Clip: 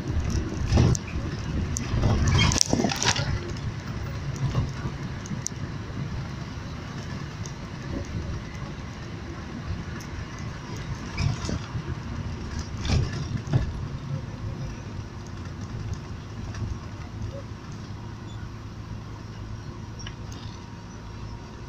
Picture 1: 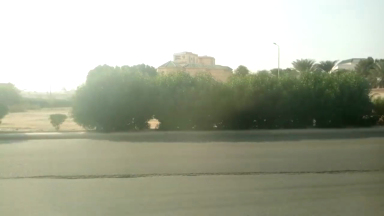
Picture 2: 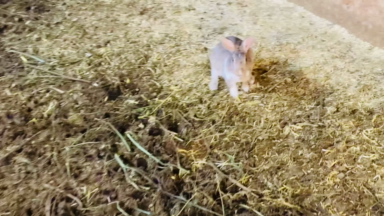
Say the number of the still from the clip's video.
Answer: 1